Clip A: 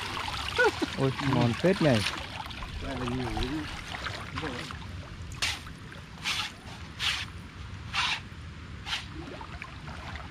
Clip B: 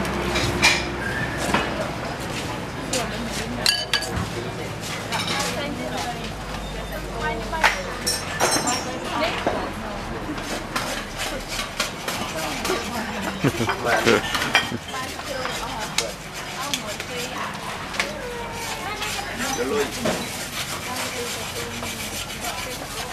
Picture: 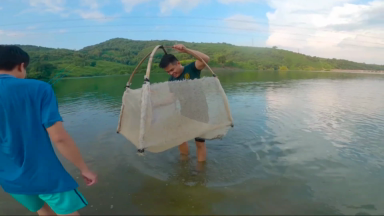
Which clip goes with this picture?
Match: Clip A